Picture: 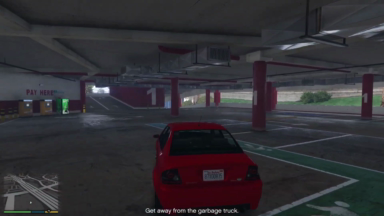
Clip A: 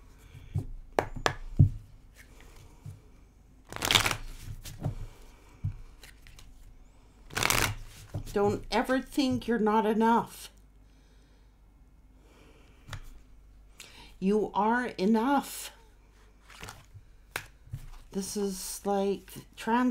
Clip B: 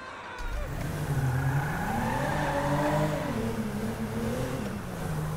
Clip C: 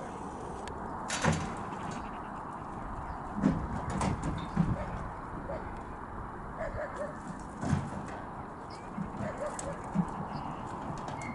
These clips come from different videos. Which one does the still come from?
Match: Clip B